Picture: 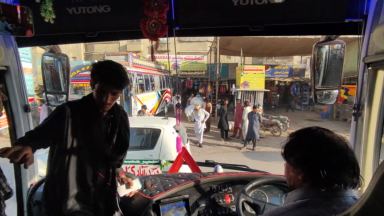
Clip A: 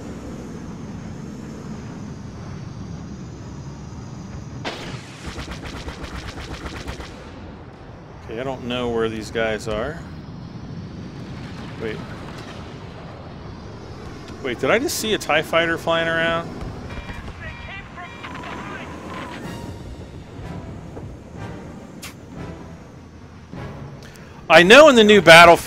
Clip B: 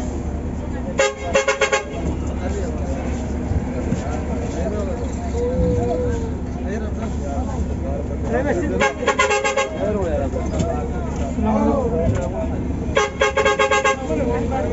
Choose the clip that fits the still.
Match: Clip B